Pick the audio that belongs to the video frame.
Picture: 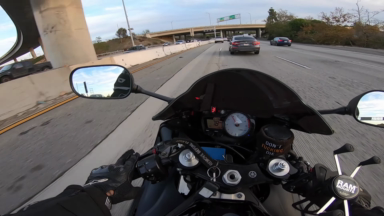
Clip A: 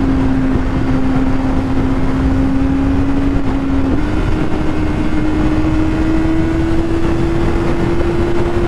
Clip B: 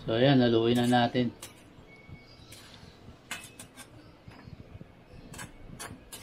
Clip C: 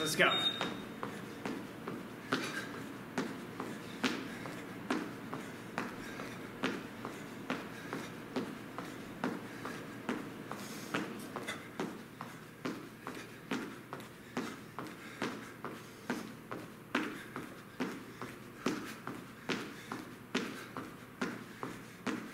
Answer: A